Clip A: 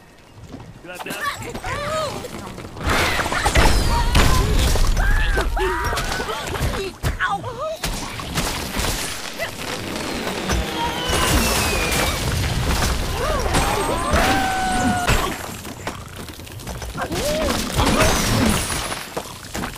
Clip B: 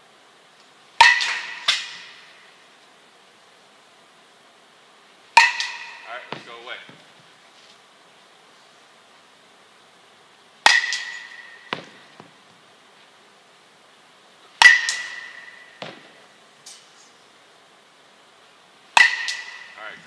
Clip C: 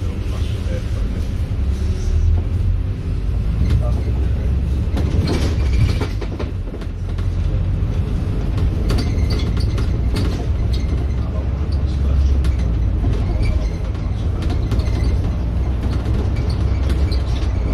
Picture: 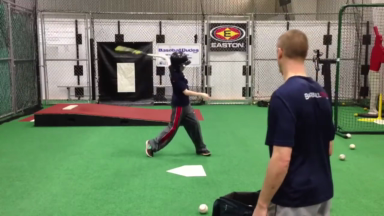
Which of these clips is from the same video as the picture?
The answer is B